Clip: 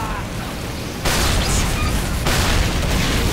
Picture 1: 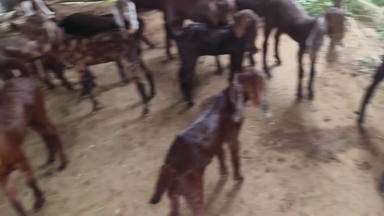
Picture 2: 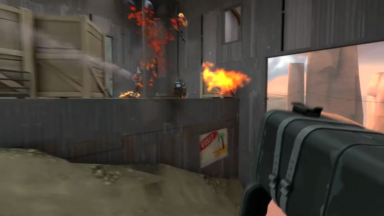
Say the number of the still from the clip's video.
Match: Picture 2